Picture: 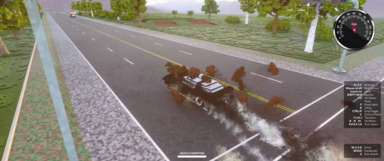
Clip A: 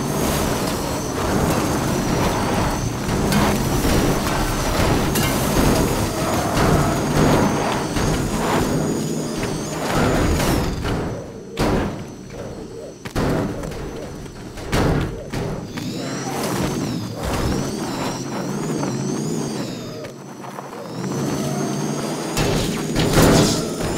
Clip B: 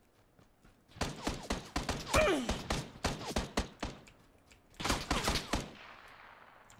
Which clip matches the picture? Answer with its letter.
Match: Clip A